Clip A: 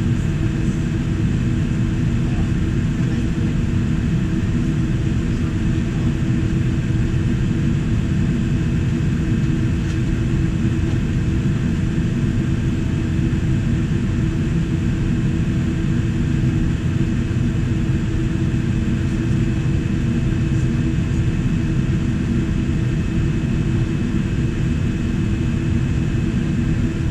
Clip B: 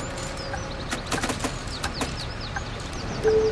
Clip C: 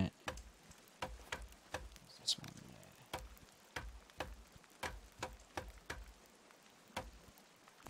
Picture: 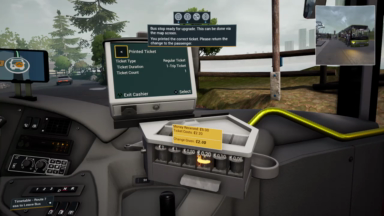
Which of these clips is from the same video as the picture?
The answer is B